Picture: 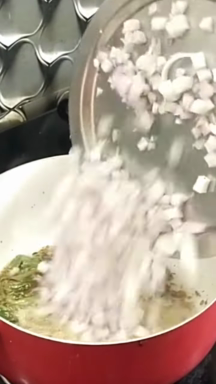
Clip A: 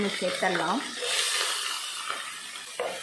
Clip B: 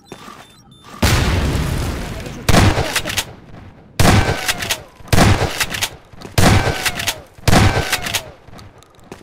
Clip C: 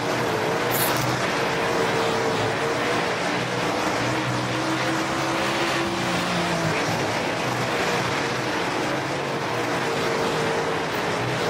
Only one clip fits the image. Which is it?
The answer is A